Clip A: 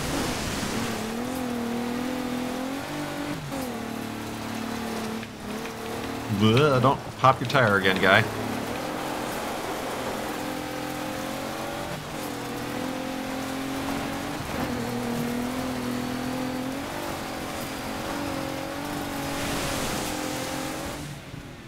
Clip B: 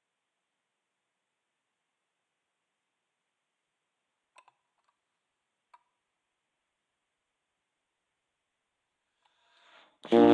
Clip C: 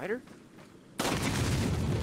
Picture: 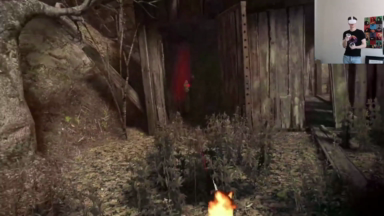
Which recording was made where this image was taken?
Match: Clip C